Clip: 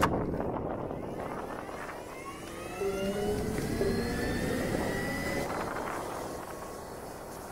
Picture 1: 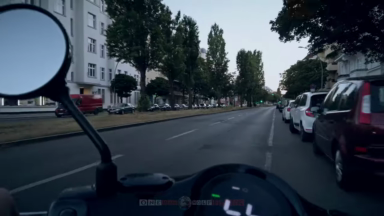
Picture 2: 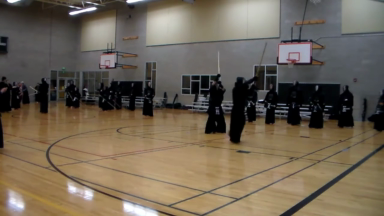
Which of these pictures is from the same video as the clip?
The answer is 1